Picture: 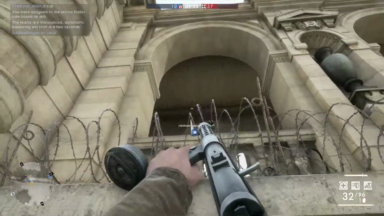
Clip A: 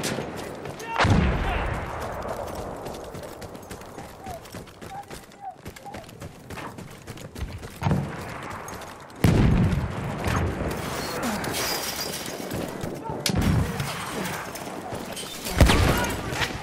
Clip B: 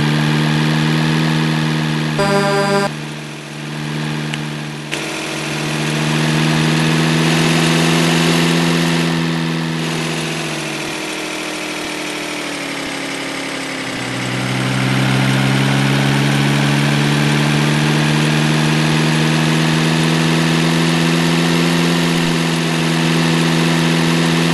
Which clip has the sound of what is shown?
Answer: A